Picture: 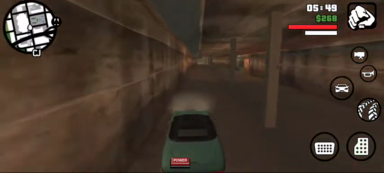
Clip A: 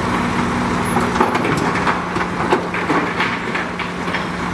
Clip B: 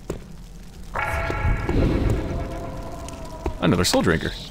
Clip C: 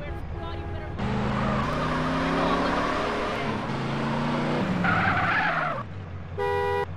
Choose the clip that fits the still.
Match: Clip C